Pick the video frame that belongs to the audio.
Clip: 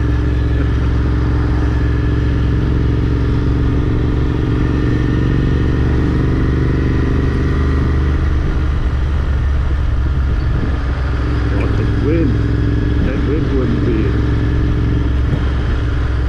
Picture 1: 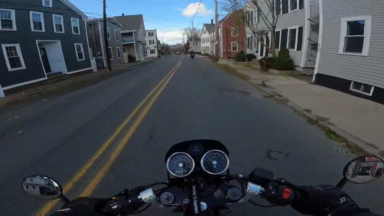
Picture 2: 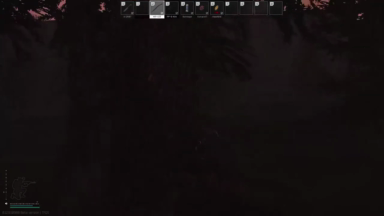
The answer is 1